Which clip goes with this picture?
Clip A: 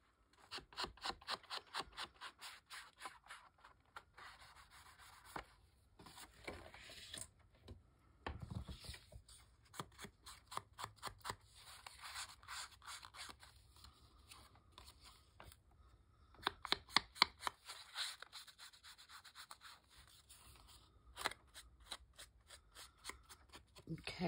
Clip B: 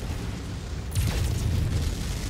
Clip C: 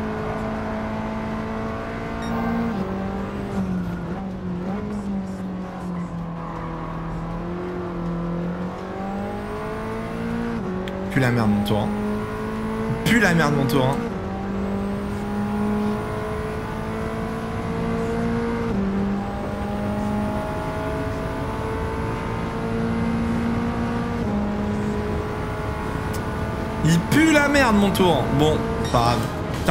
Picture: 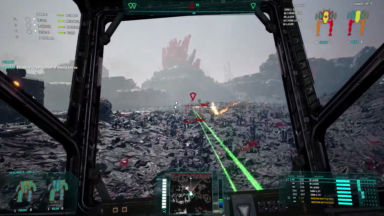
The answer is B